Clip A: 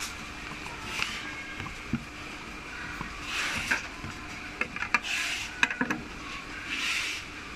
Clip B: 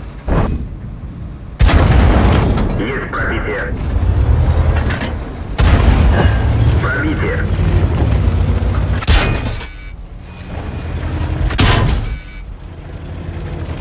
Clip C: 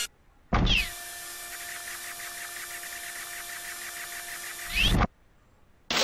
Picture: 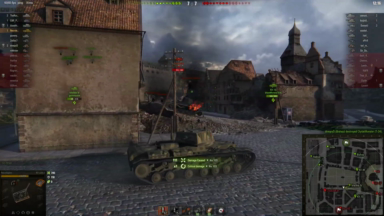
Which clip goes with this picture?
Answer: B